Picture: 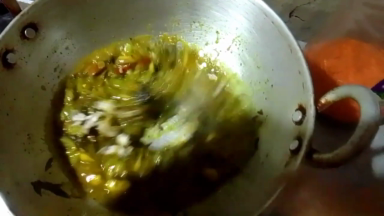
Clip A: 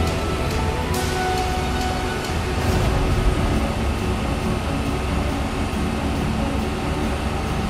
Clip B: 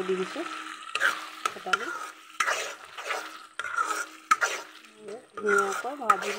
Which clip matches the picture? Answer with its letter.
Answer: B